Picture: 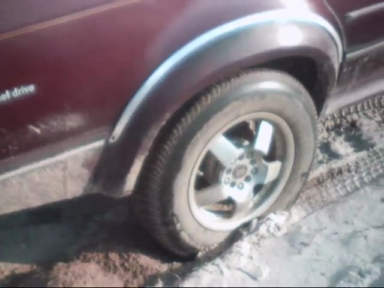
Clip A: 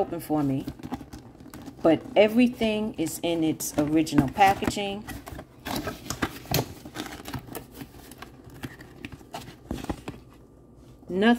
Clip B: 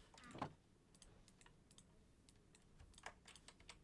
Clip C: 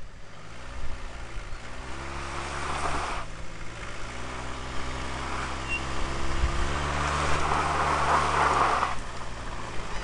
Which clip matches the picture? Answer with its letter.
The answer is C